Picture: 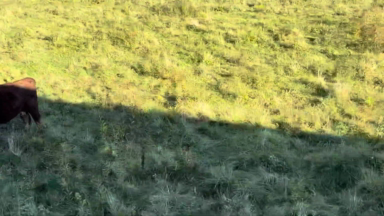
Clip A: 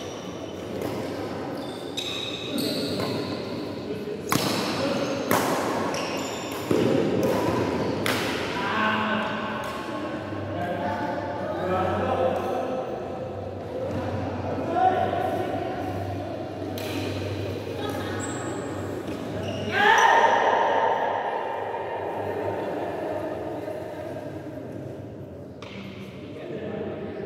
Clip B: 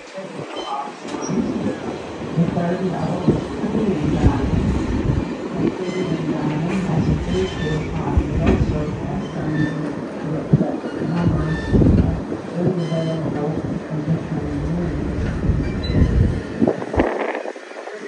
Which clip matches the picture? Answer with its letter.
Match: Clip B